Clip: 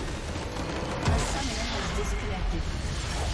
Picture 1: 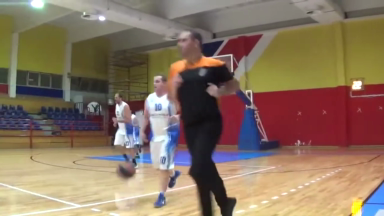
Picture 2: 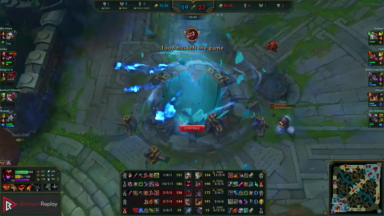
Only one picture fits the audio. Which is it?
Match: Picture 2